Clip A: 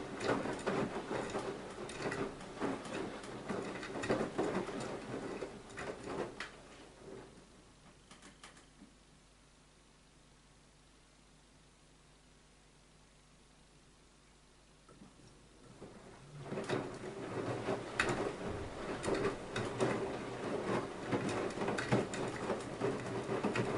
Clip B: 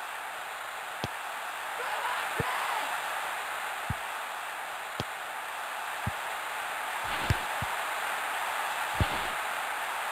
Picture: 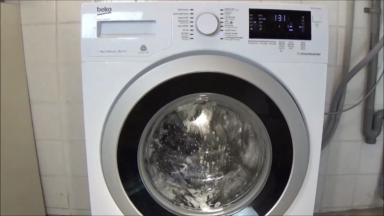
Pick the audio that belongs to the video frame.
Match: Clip A